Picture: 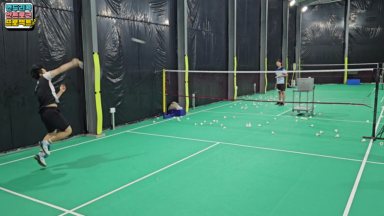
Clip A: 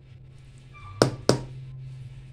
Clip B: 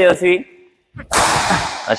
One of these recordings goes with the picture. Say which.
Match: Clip B